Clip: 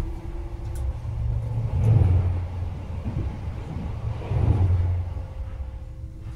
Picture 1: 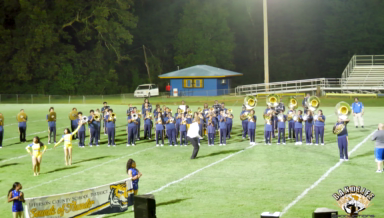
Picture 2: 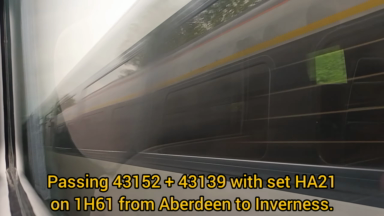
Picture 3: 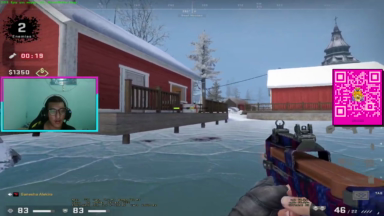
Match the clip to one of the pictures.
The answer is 2